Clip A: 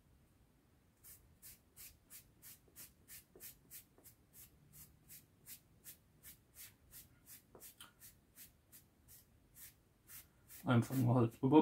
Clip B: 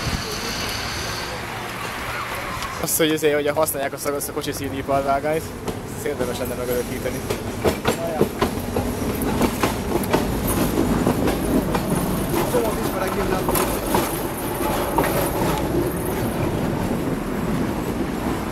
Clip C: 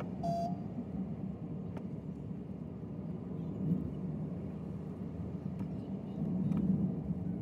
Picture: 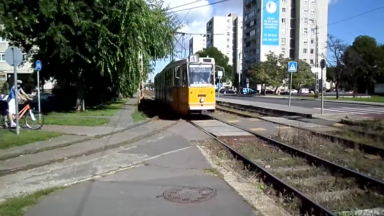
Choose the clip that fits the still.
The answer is B